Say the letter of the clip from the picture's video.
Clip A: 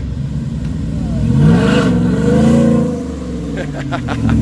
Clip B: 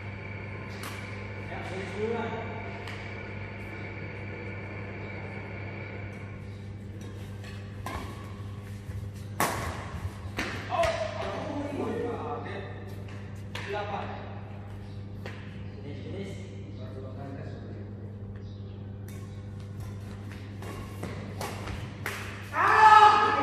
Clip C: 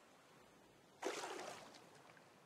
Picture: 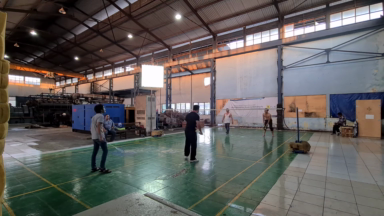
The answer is B